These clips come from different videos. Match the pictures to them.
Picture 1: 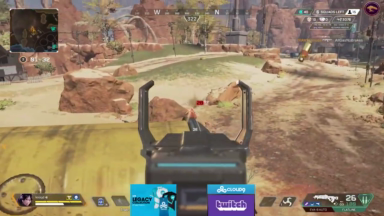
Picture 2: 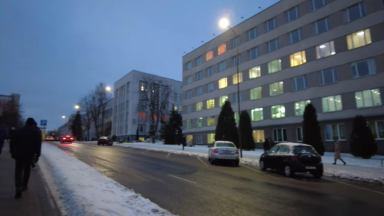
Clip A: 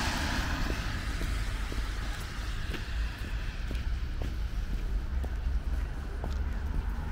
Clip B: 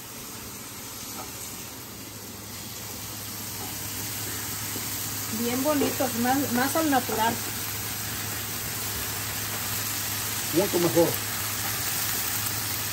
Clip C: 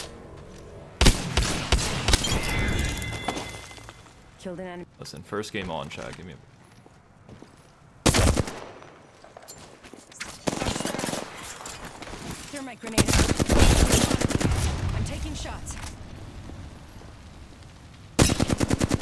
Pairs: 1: C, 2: A